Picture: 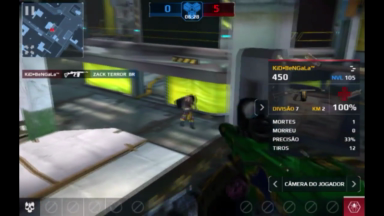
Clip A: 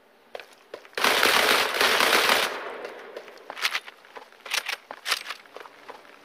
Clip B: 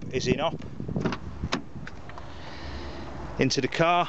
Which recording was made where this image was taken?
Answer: A